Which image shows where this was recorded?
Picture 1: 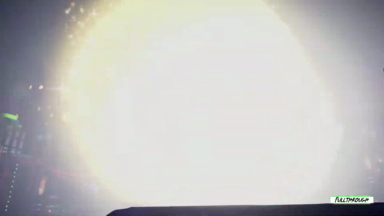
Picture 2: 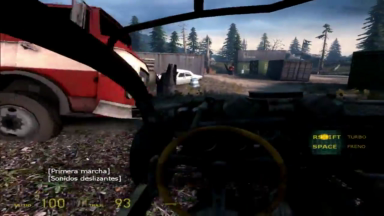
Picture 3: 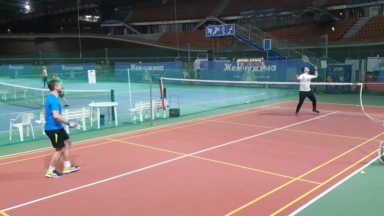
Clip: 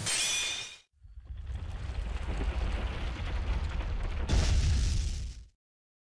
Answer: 1